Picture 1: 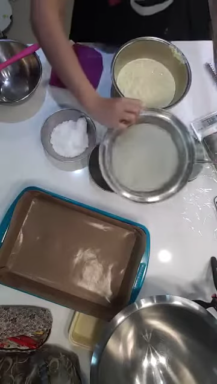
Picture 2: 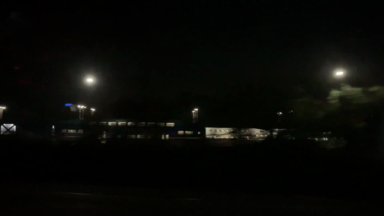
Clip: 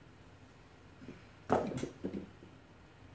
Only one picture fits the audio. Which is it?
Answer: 1